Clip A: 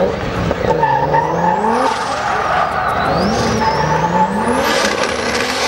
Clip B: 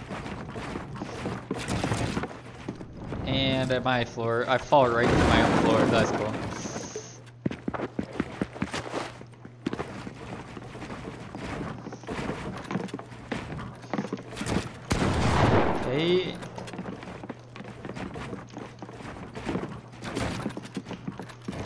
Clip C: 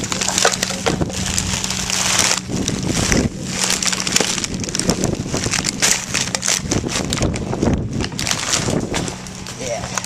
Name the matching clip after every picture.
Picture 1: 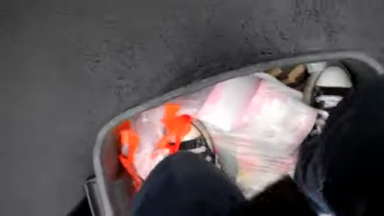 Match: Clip C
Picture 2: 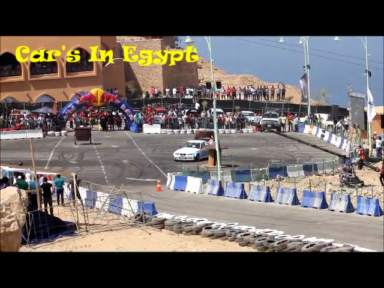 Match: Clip A